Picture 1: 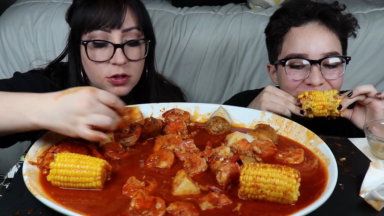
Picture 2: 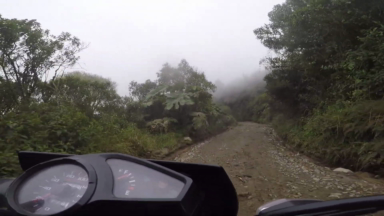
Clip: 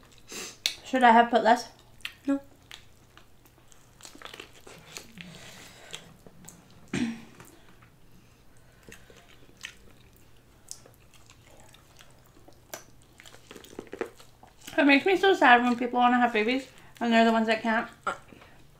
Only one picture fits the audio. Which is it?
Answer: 1